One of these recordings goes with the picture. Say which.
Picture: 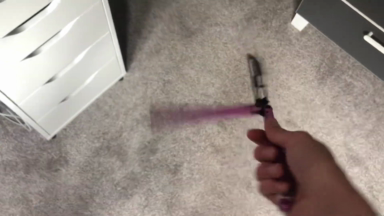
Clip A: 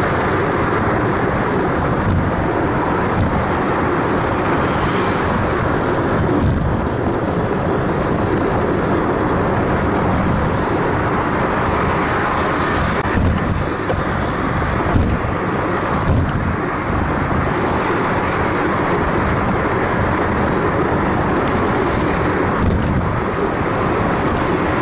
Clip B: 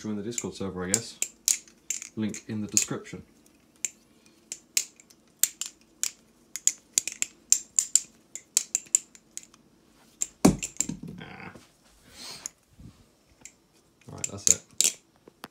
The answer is B